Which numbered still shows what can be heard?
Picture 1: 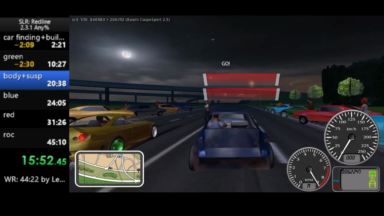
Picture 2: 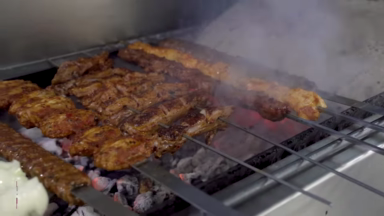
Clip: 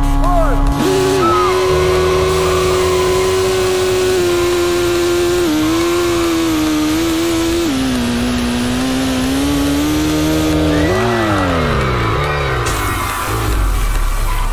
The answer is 1